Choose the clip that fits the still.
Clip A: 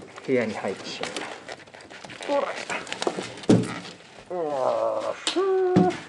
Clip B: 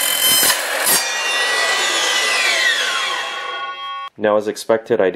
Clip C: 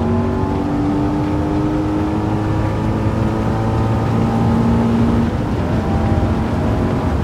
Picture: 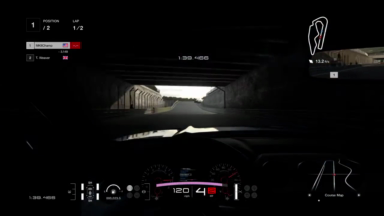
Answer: C